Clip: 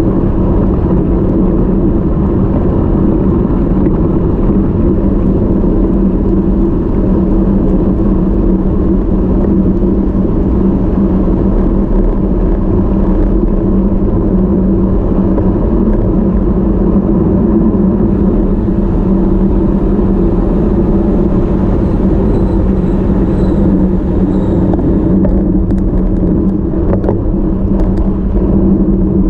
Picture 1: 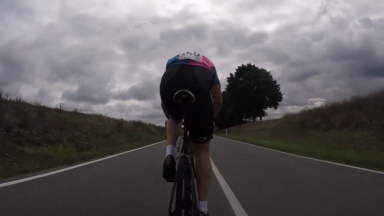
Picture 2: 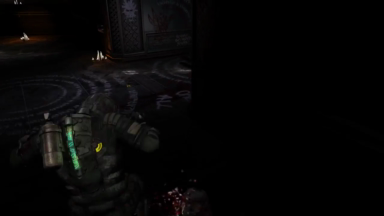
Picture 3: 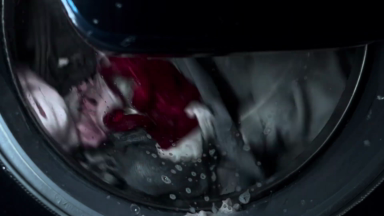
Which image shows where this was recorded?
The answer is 1